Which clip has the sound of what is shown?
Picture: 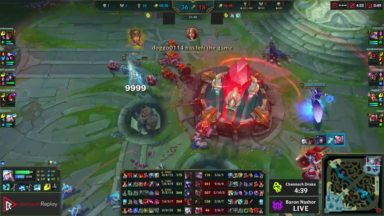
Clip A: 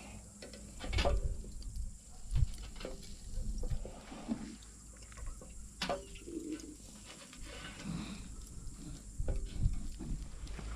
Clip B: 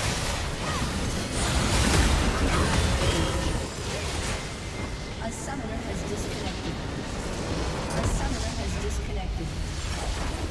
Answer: B